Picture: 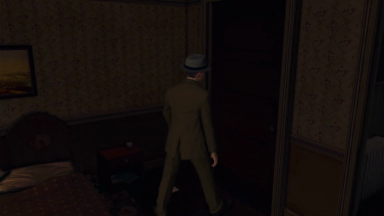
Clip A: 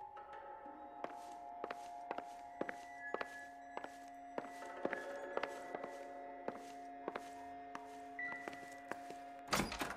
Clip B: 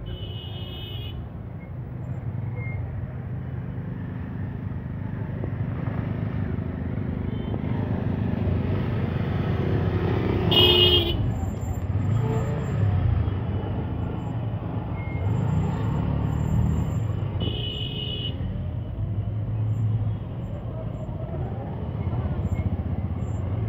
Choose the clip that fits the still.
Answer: A